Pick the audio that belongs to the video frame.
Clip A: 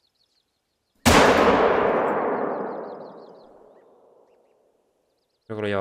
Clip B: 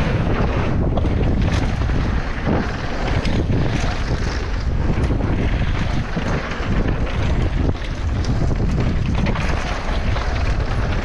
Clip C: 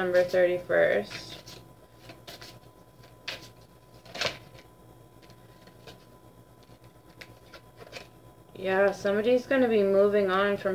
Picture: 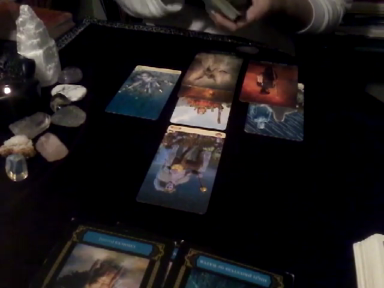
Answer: C